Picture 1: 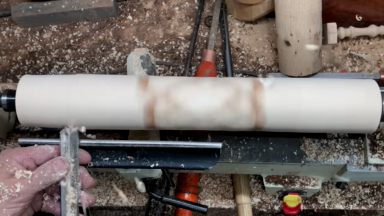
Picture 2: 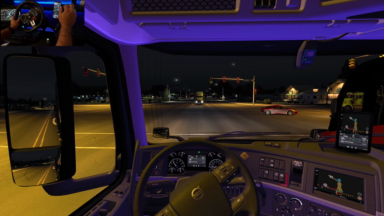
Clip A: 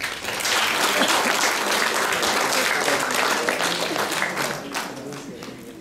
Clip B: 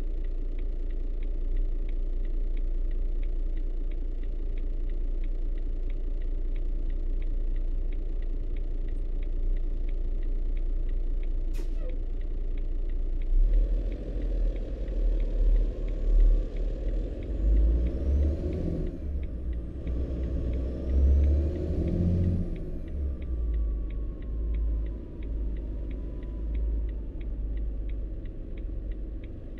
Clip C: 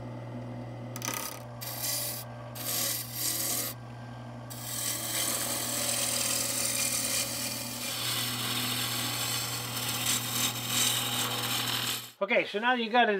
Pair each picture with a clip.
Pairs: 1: C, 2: B